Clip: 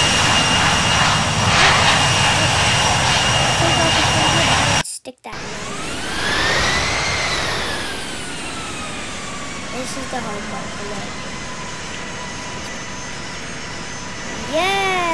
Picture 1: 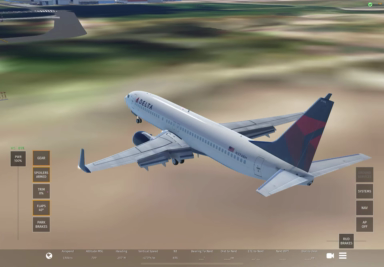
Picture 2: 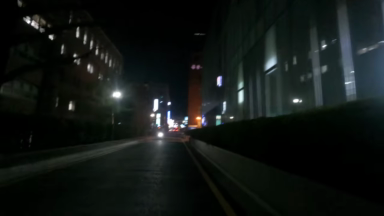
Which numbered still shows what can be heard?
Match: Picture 1